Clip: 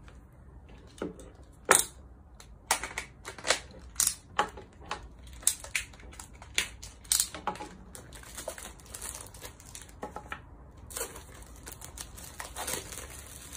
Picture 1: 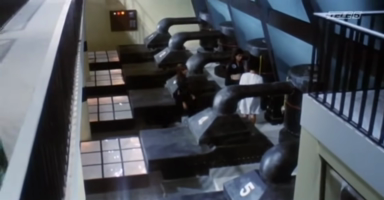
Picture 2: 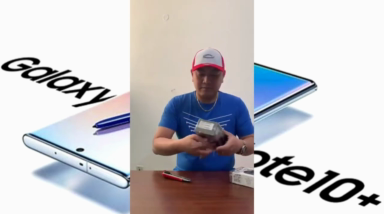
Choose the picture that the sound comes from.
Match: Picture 2